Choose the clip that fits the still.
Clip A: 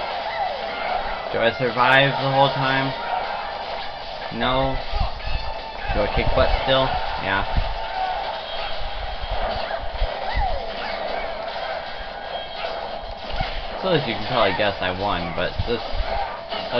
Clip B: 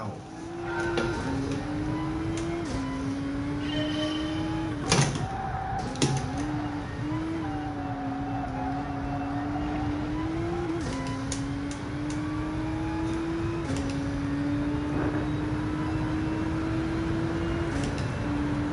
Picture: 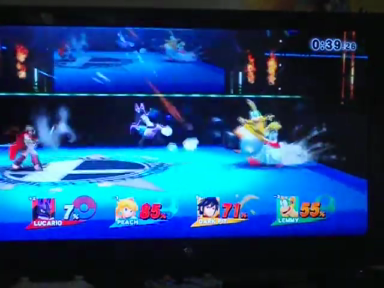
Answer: A